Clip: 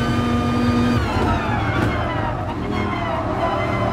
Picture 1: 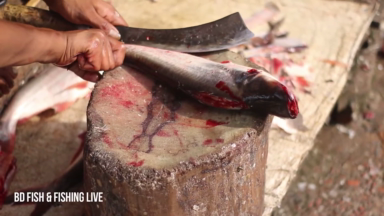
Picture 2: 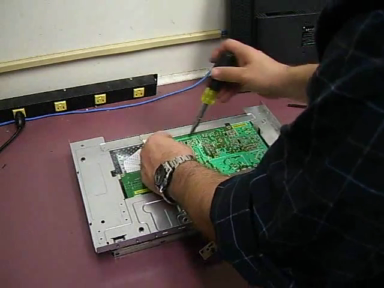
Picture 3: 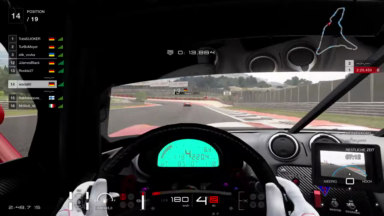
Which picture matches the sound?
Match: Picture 3